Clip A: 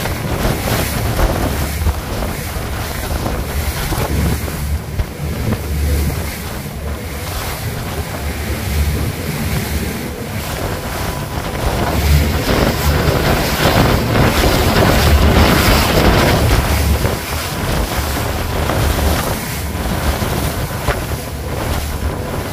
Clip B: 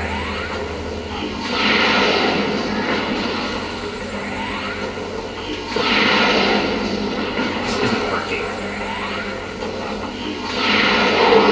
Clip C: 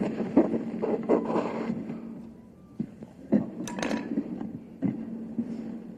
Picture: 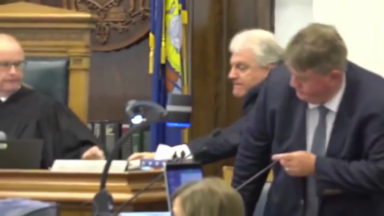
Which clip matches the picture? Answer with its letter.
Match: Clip C